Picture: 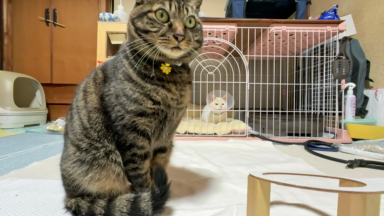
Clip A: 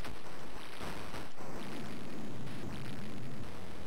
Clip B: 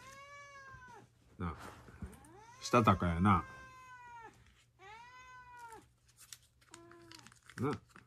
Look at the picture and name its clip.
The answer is B